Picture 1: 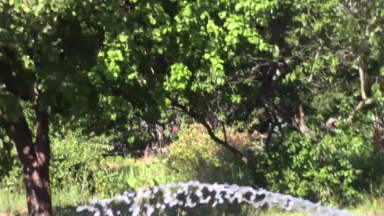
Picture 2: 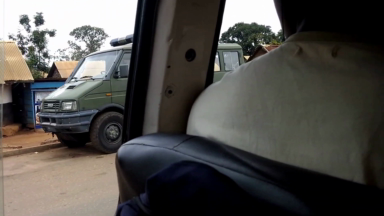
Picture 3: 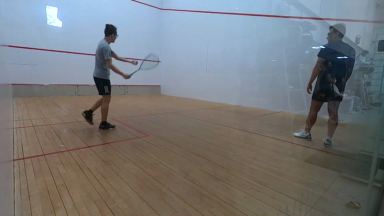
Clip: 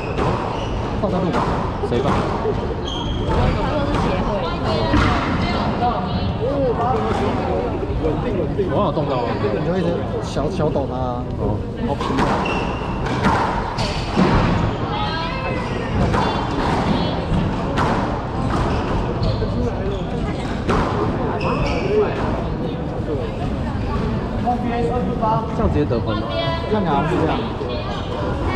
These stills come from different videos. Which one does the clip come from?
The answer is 3